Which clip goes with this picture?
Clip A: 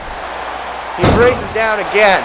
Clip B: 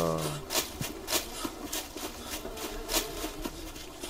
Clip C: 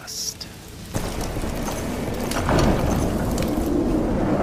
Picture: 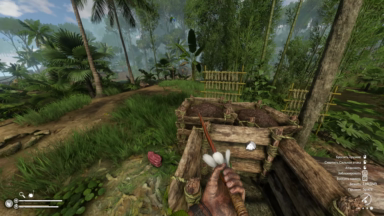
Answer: B